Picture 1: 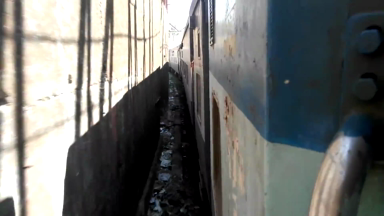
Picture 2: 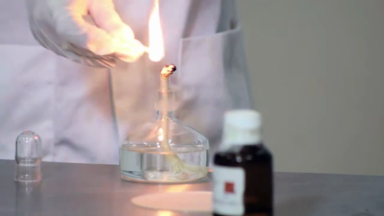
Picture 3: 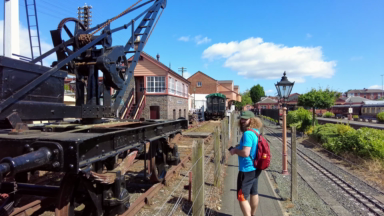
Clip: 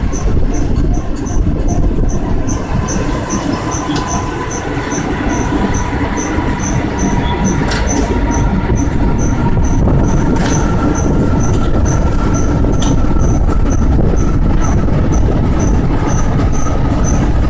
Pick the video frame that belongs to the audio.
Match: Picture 1